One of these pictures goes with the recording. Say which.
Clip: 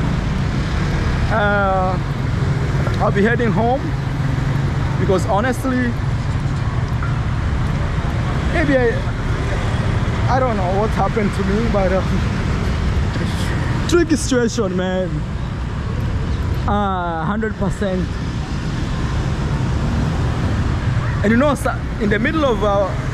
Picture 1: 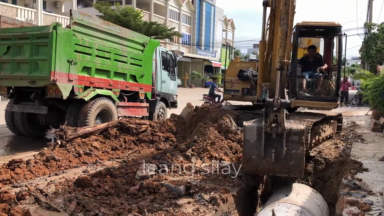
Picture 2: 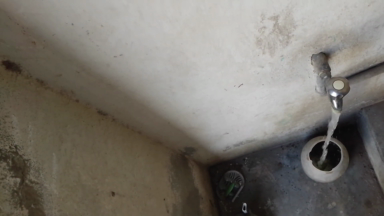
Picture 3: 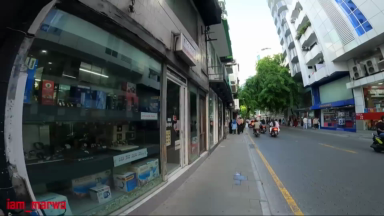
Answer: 3